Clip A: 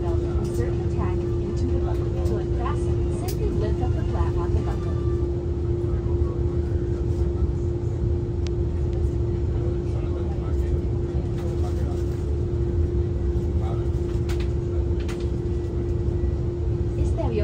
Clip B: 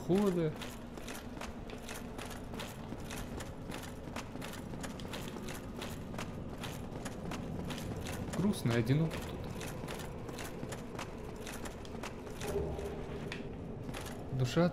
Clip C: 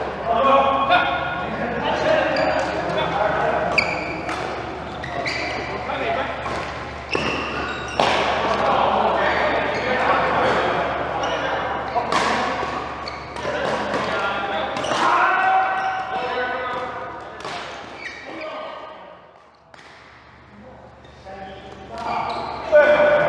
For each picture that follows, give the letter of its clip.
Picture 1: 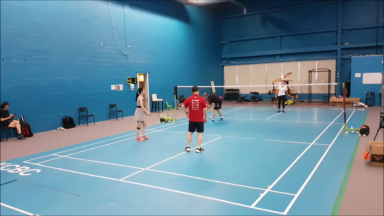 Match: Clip C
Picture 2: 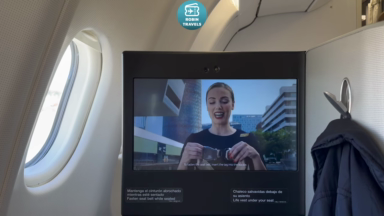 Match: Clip A